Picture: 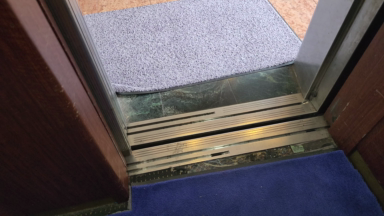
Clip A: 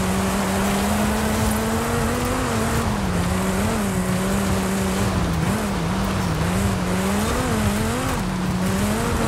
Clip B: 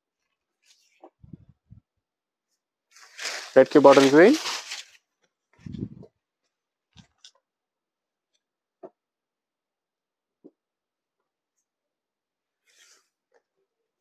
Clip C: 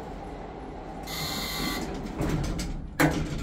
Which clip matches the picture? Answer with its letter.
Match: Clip C